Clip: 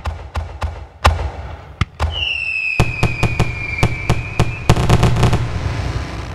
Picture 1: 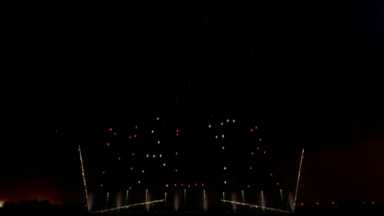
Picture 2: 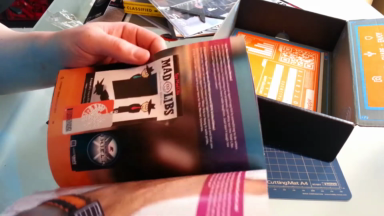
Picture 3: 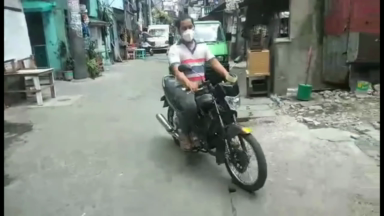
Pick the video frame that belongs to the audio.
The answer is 1